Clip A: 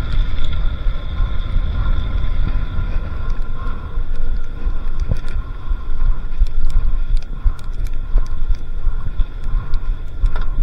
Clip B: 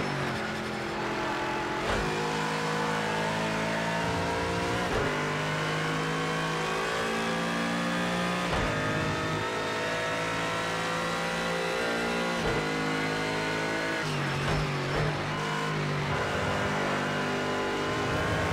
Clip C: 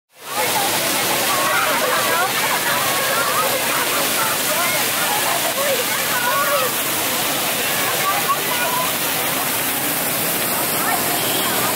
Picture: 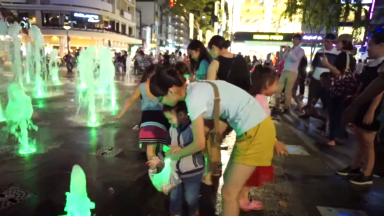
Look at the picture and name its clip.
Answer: C